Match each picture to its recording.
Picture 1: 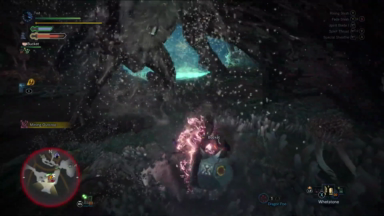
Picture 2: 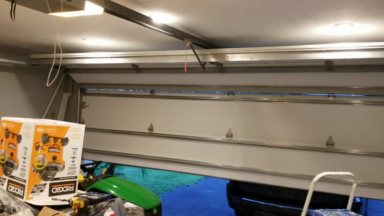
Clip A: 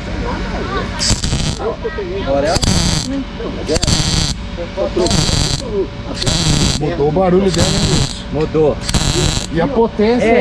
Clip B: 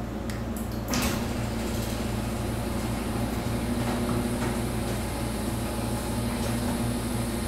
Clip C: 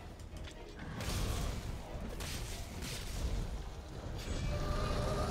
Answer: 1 C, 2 B